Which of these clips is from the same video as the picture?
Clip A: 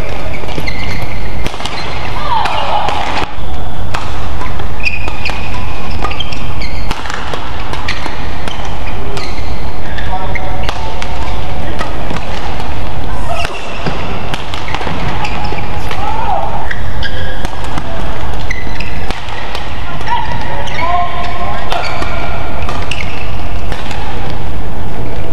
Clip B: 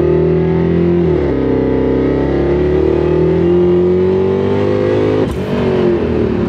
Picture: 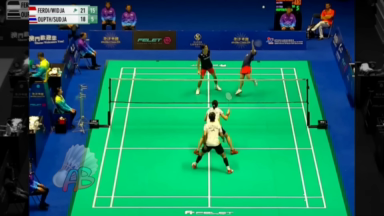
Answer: A